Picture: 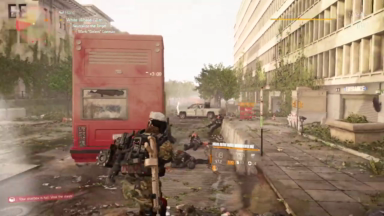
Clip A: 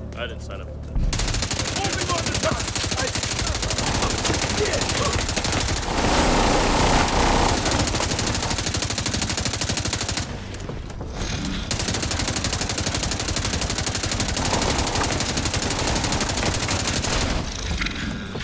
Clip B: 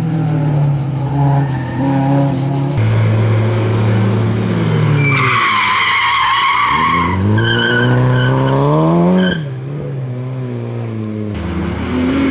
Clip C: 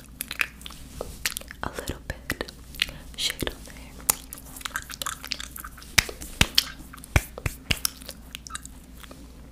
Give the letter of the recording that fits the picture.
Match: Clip A